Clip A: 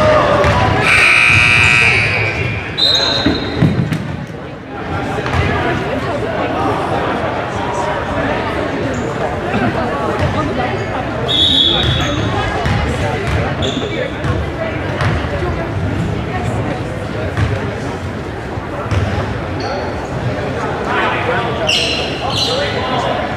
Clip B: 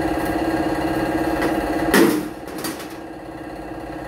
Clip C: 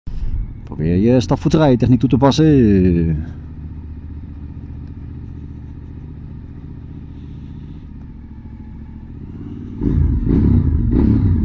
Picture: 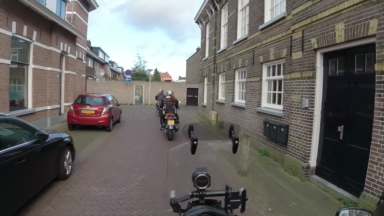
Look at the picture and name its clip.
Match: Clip C